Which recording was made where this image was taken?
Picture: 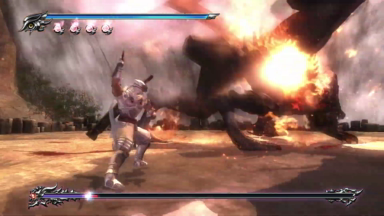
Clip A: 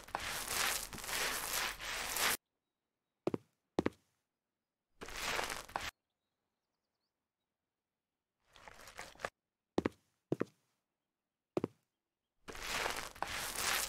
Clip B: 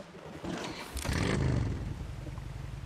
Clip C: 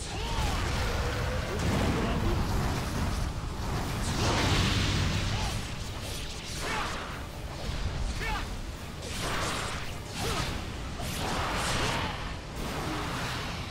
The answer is C